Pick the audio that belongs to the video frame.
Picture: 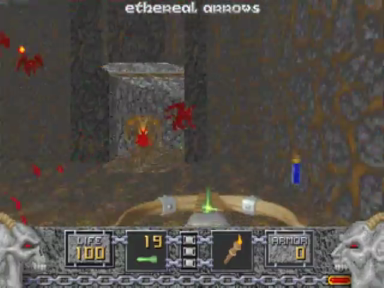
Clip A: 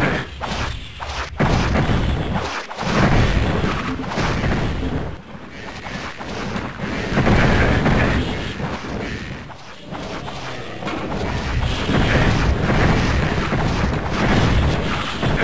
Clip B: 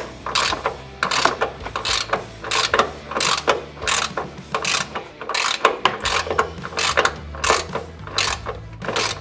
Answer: A